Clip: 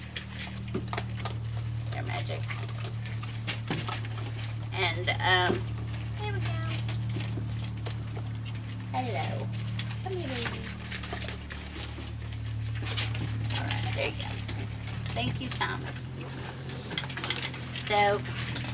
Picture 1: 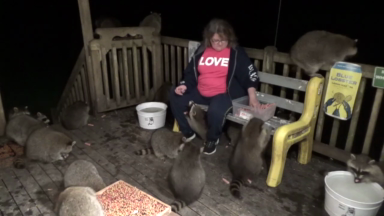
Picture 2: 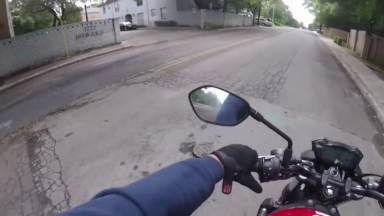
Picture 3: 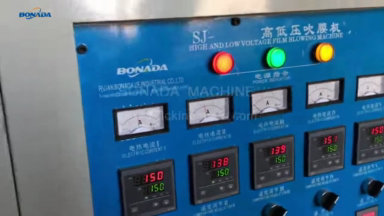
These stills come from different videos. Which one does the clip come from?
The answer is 1